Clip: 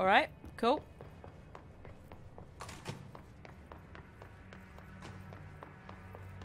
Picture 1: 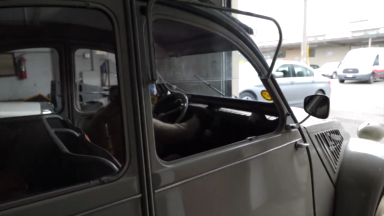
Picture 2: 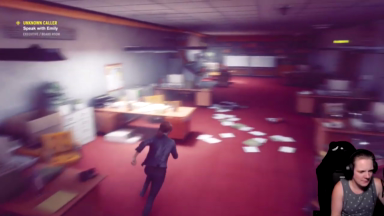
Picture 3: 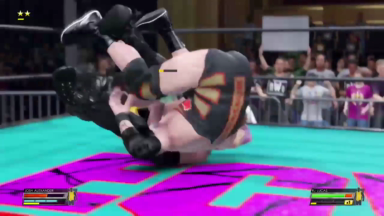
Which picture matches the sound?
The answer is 2